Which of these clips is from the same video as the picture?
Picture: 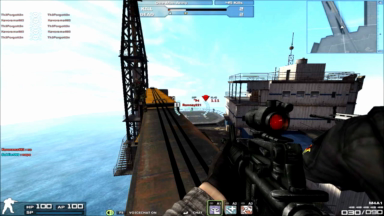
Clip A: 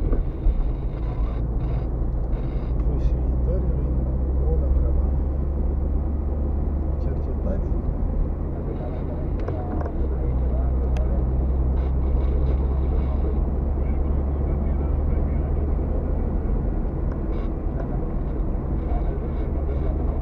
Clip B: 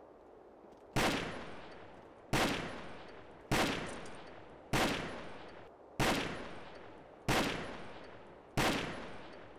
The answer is B